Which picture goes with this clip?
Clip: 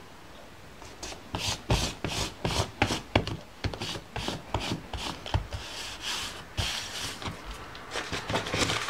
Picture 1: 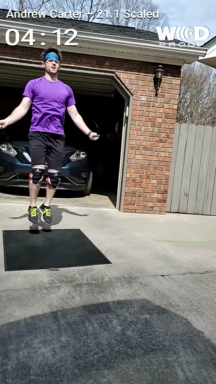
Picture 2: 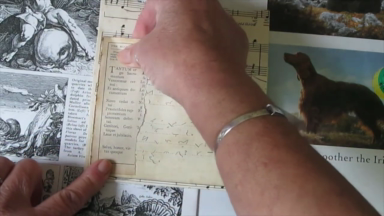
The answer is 2